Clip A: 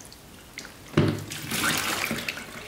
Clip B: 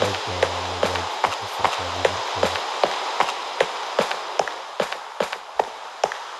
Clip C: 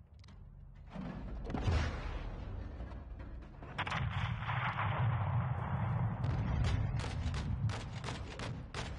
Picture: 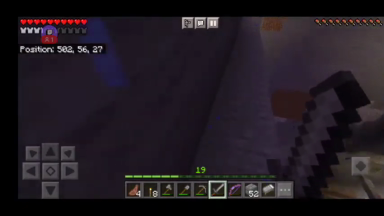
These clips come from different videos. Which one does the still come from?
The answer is B